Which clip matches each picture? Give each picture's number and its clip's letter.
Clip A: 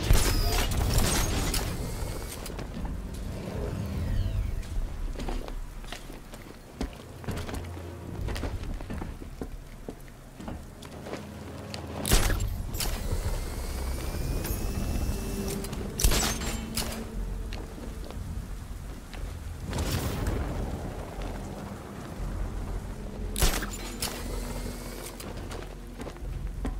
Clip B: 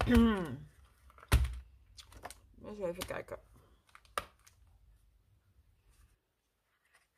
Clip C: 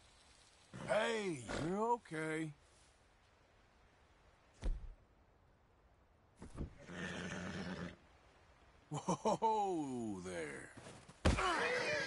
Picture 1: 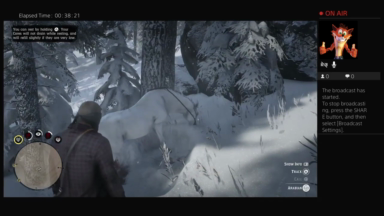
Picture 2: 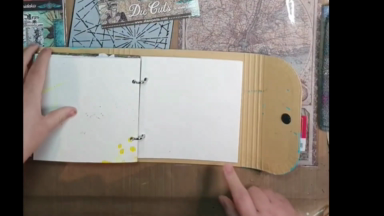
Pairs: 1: C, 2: B